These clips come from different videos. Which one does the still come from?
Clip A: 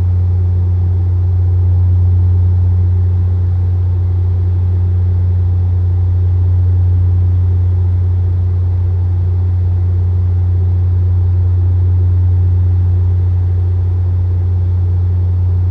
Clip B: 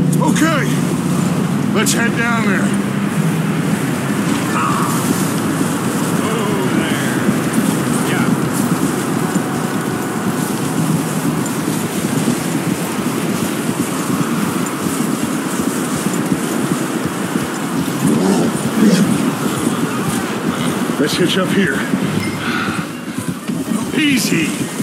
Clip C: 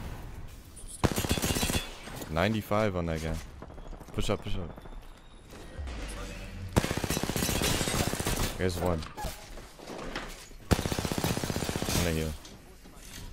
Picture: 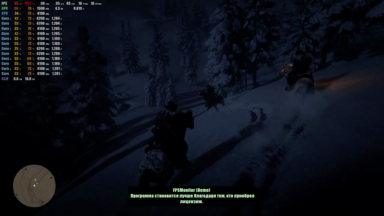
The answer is B